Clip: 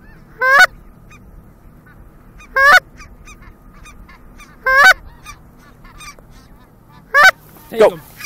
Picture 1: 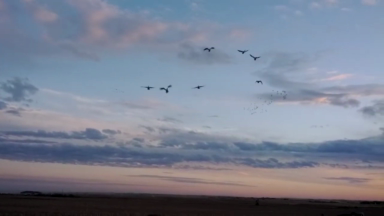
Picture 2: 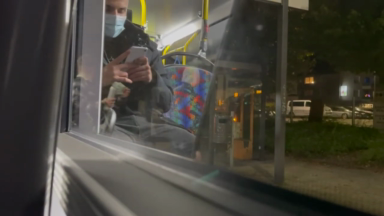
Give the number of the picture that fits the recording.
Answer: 1